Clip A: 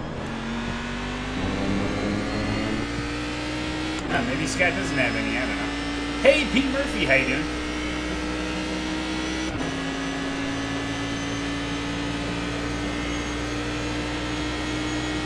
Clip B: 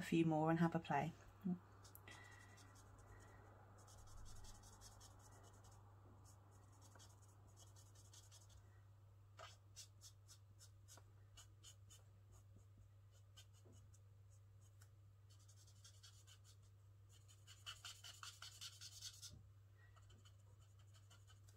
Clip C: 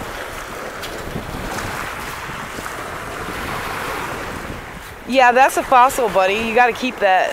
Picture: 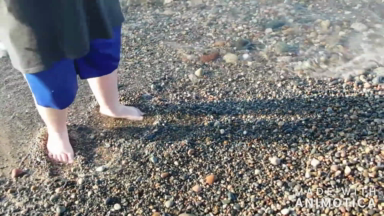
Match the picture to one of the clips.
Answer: C